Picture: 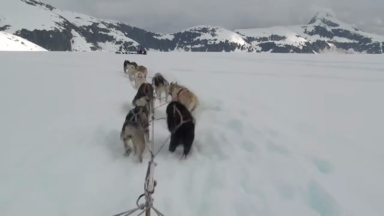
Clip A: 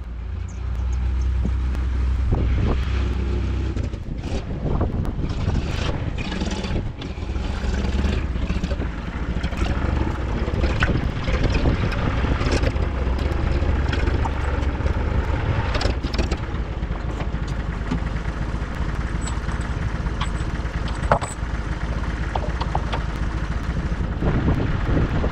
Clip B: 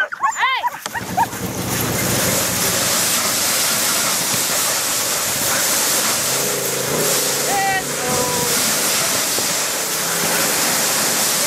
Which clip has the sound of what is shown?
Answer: B